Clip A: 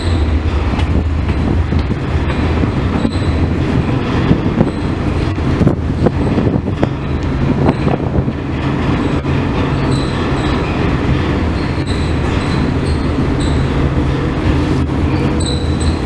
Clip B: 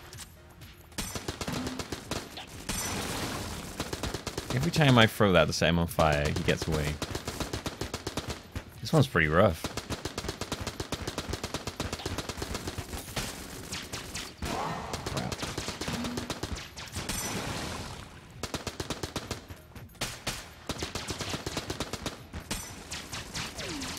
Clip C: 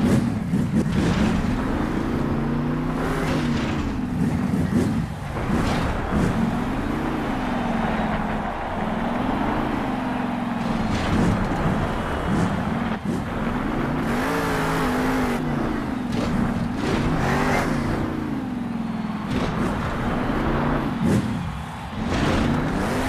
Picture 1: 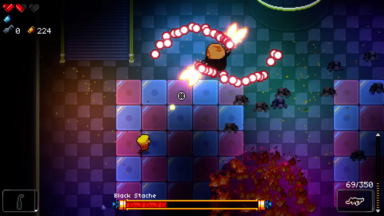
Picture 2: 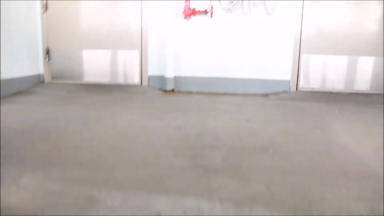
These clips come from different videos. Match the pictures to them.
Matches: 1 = B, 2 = A